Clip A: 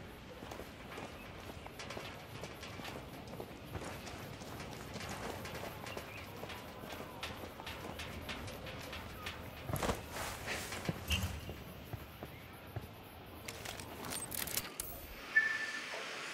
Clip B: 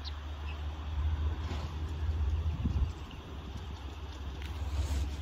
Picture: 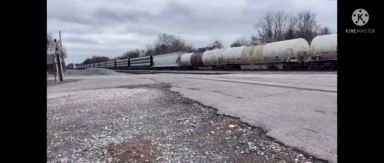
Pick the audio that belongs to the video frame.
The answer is B